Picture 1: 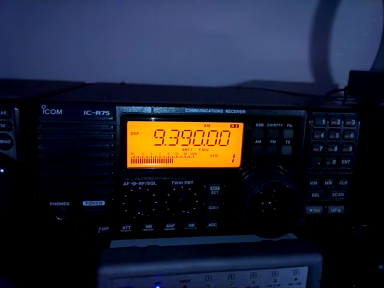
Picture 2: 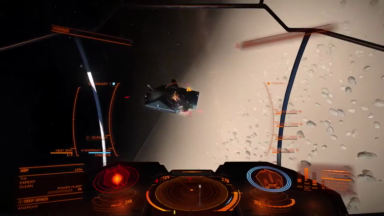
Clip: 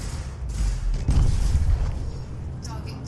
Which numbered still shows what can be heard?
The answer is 2